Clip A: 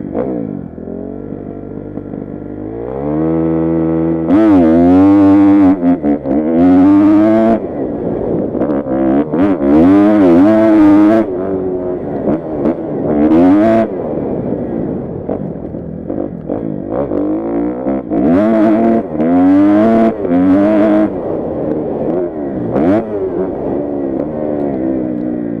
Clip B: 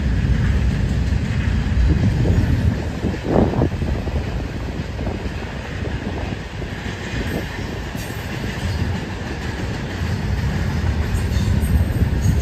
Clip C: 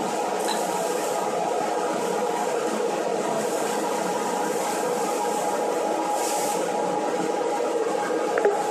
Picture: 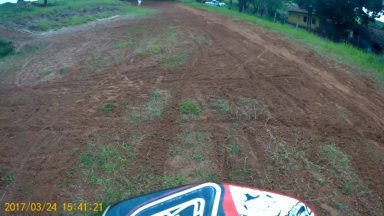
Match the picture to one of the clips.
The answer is A